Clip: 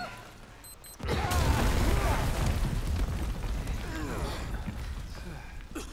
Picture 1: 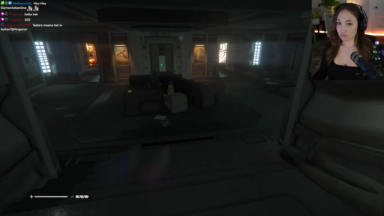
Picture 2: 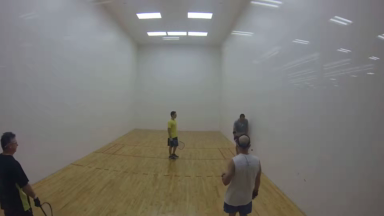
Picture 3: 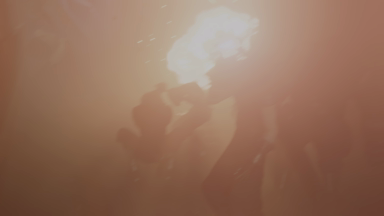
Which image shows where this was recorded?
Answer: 3